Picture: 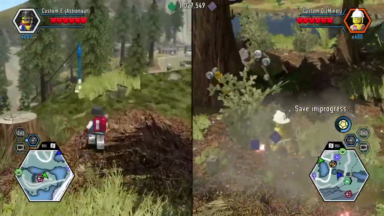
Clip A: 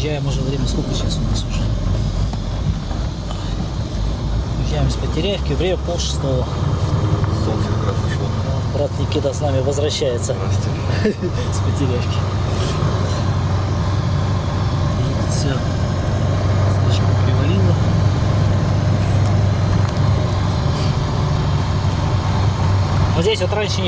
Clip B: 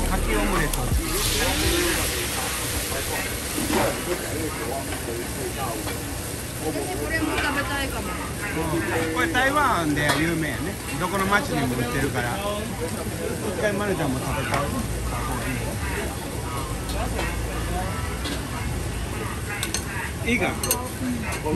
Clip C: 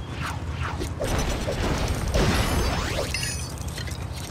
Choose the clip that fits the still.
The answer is C